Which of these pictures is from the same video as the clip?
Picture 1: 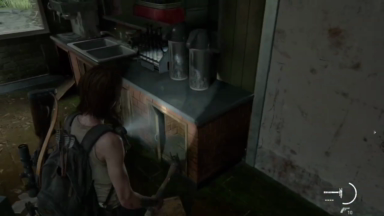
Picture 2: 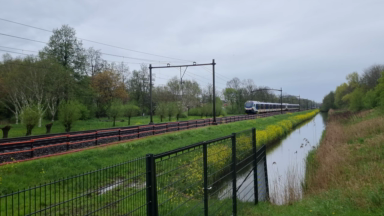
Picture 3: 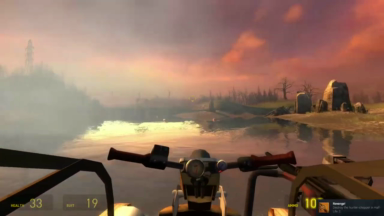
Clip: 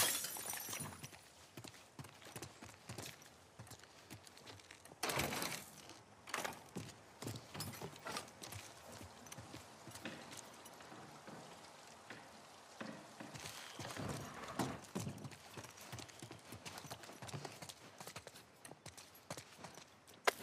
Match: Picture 1